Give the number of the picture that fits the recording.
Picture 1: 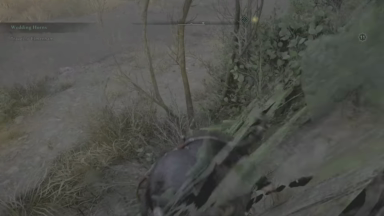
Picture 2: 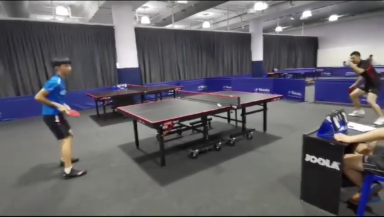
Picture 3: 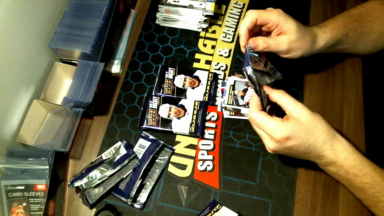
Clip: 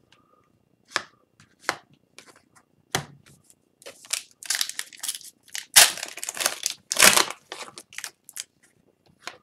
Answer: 3